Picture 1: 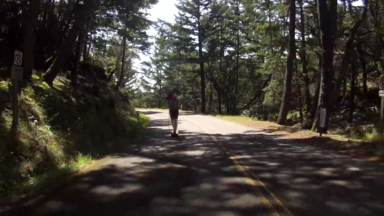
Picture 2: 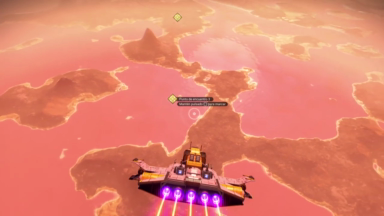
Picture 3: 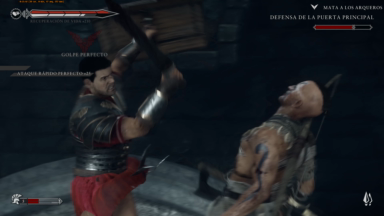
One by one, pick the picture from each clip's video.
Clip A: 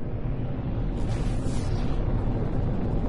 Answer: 2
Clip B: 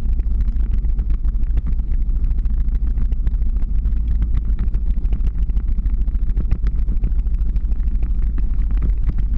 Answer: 1